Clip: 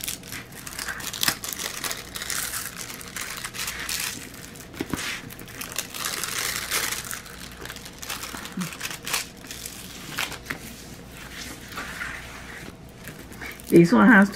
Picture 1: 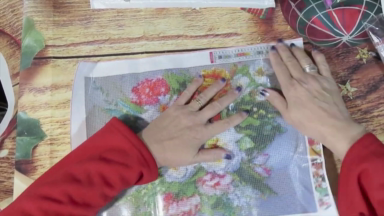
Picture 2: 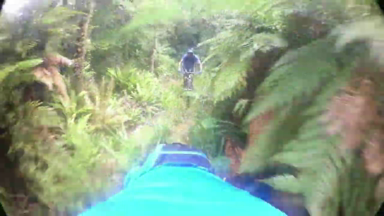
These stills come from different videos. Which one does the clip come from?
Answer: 1